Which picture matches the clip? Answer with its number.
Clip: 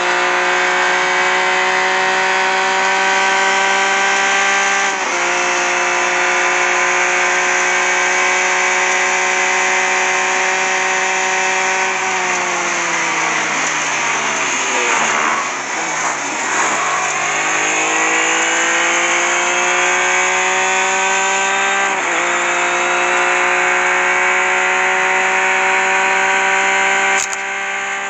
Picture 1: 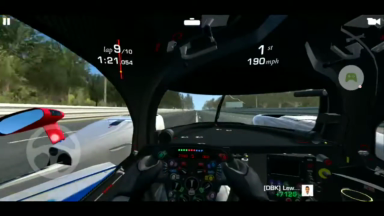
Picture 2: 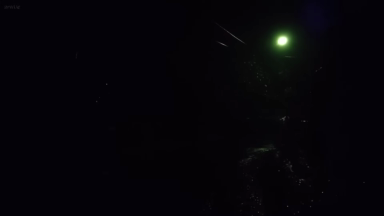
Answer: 1